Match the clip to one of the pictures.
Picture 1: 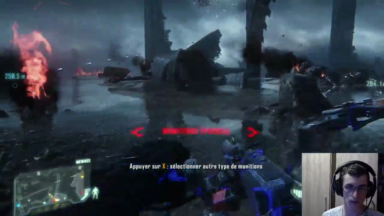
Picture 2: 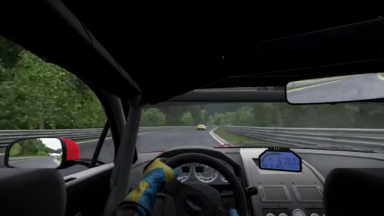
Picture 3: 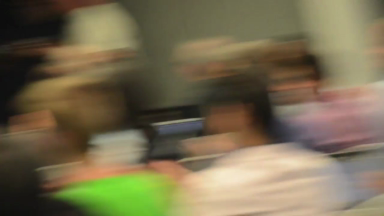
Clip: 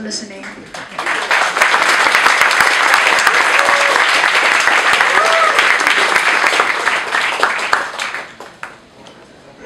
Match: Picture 3